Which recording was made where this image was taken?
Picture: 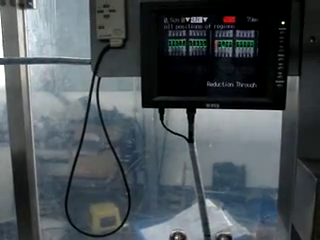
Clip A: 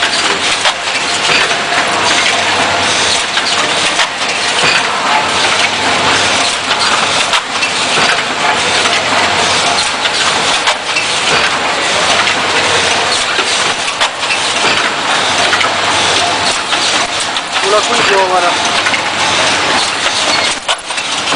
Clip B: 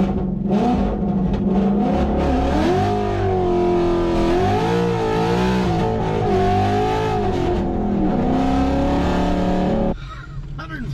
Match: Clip A